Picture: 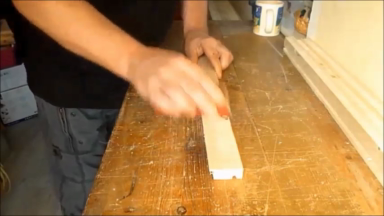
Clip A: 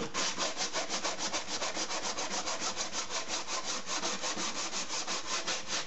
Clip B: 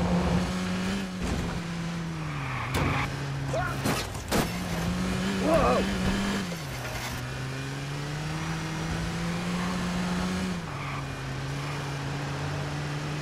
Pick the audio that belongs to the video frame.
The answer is A